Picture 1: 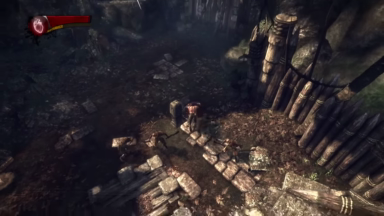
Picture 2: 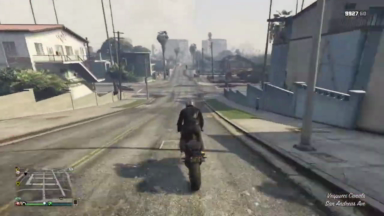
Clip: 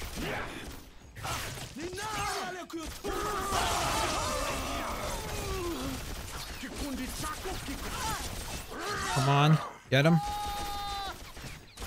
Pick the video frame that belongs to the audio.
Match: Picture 1